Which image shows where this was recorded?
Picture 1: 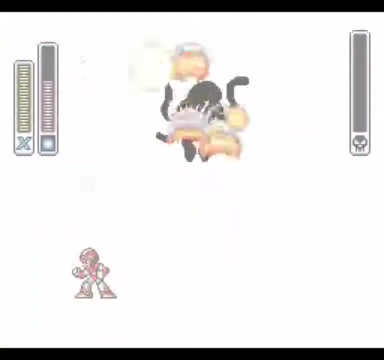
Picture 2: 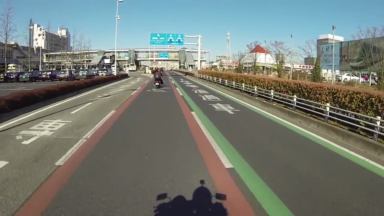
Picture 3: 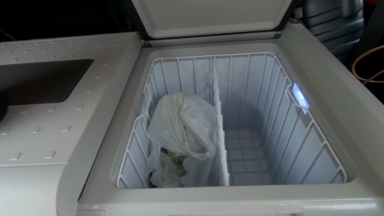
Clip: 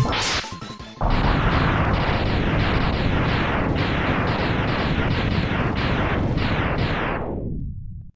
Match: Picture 1